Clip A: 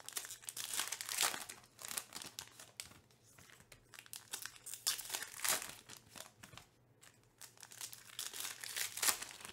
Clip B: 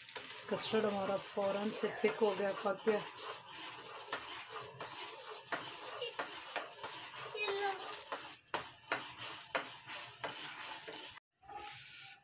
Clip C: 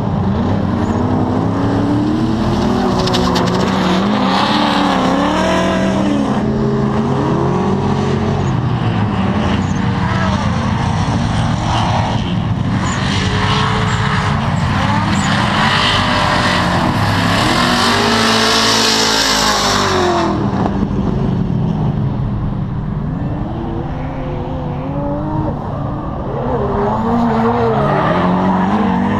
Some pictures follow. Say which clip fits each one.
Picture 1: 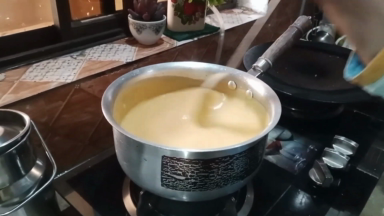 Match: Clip B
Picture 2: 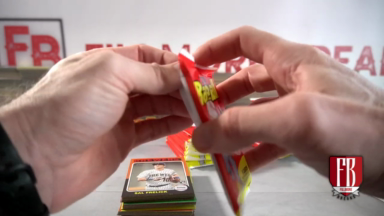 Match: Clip A